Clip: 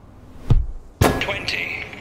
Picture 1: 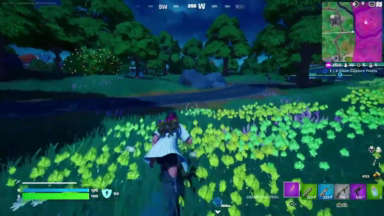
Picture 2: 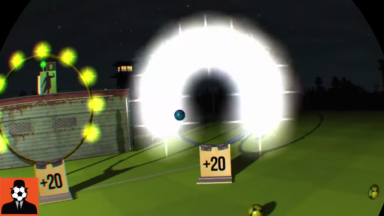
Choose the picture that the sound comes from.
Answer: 2